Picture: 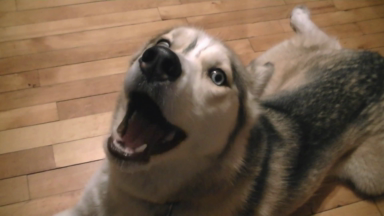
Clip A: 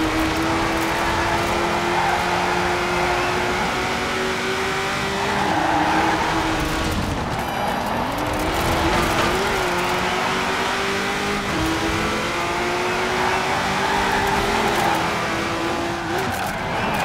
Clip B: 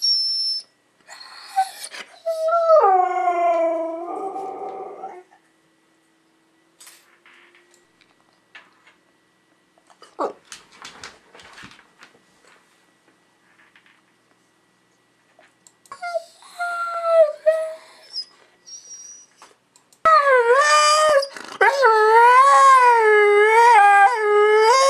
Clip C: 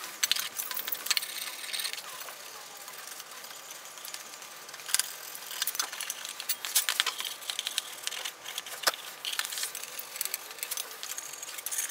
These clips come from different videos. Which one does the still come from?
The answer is B